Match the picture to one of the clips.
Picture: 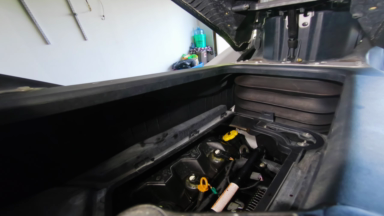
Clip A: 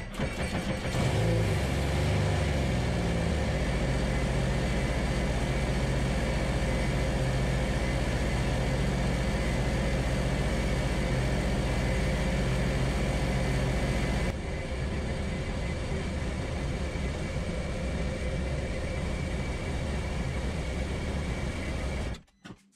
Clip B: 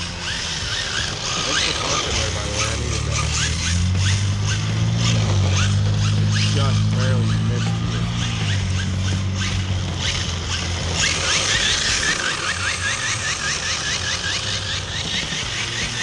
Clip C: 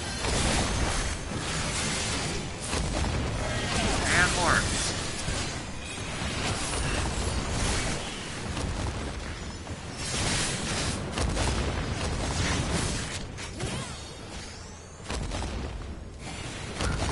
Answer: A